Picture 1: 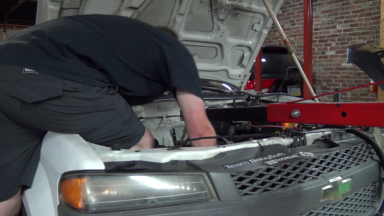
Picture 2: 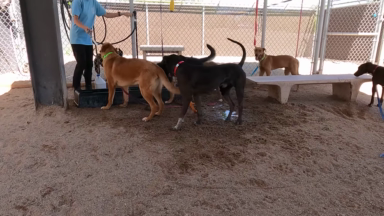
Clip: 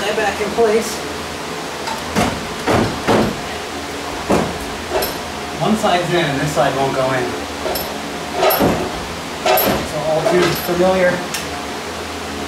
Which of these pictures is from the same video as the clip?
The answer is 1